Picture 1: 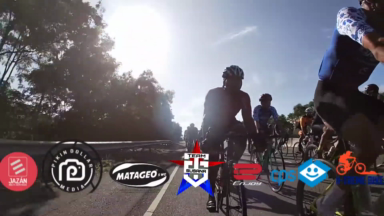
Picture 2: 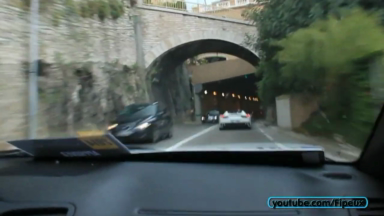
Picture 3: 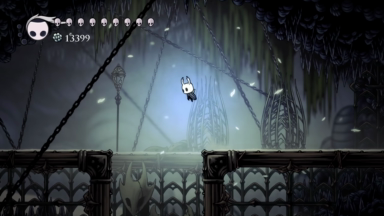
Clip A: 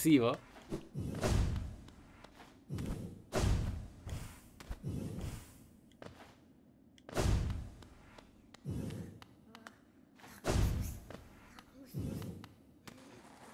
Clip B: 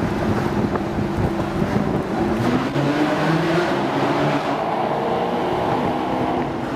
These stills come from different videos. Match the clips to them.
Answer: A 3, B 2